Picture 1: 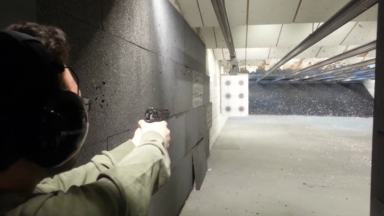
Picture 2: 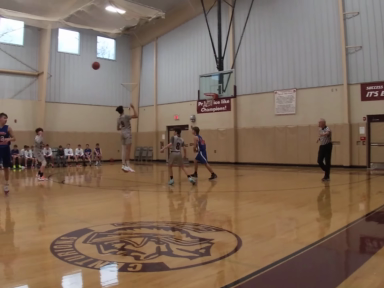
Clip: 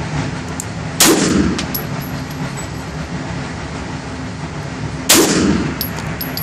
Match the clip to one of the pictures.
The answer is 1